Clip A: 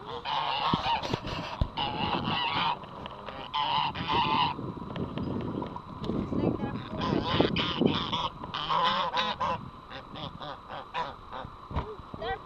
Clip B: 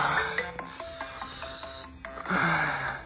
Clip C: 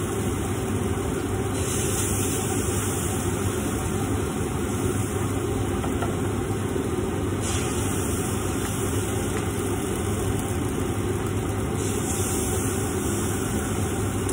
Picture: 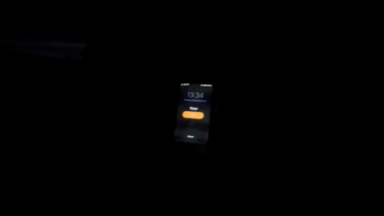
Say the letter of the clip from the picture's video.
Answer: B